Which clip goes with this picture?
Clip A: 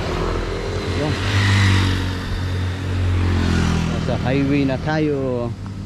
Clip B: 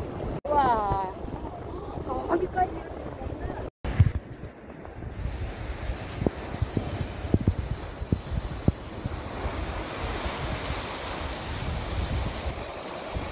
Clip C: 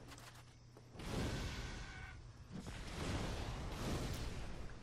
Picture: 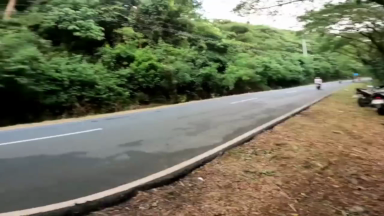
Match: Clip A